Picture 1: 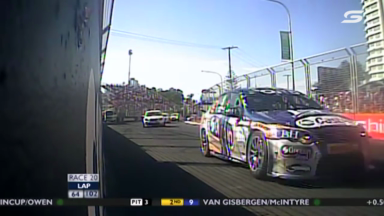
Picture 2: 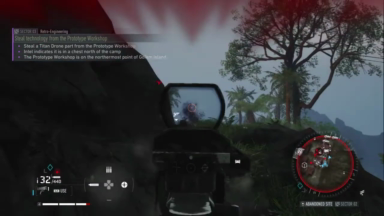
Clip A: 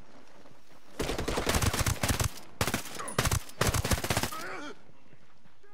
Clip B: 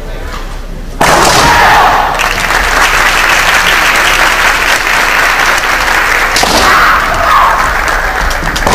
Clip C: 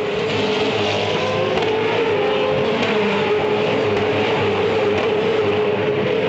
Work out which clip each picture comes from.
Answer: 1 C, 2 A